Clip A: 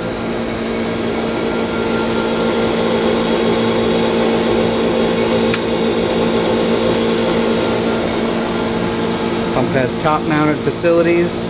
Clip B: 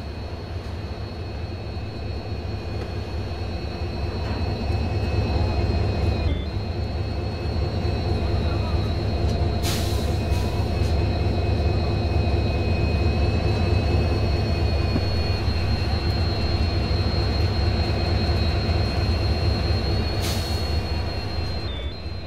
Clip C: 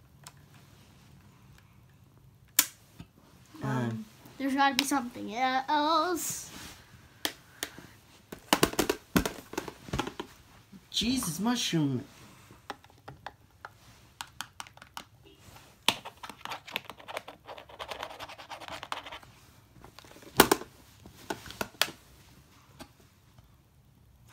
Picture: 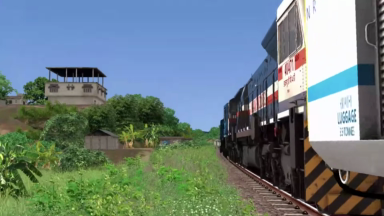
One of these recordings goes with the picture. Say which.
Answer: B